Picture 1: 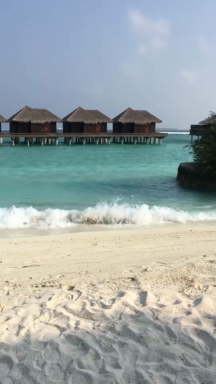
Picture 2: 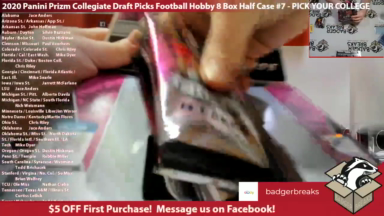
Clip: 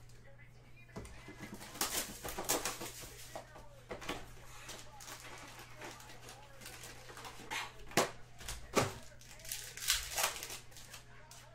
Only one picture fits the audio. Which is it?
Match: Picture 2